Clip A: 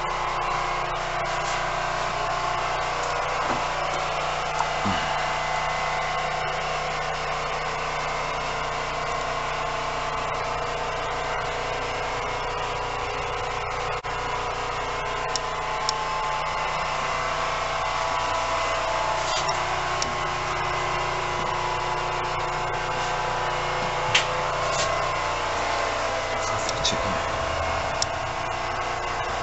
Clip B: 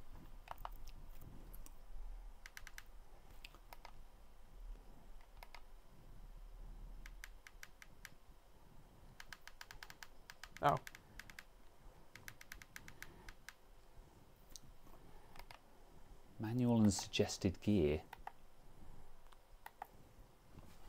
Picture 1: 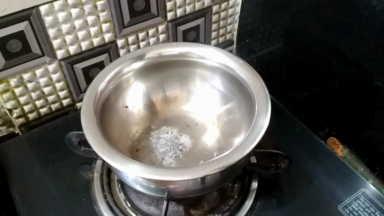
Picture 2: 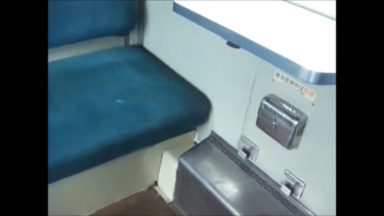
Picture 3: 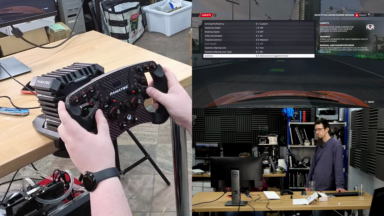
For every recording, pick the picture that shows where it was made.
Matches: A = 2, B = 3